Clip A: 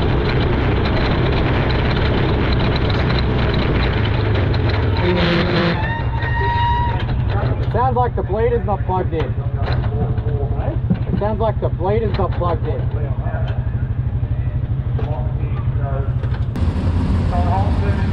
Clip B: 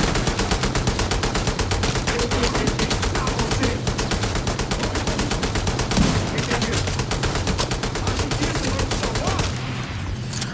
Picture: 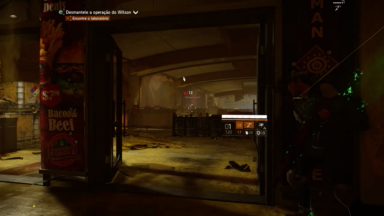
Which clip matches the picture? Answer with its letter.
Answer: B